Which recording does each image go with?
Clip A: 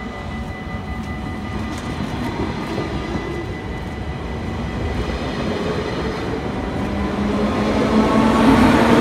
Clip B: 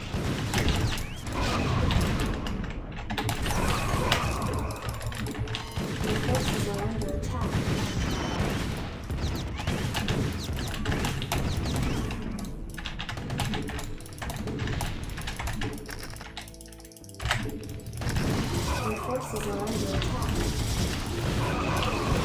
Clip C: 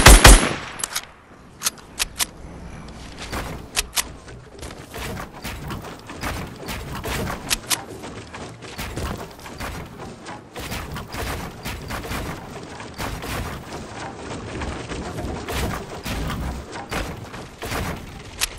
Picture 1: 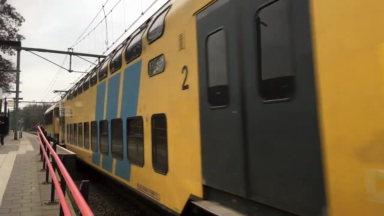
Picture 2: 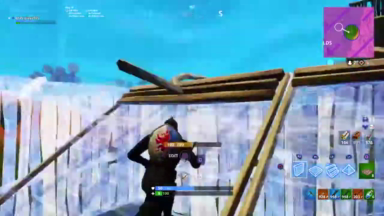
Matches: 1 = A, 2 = C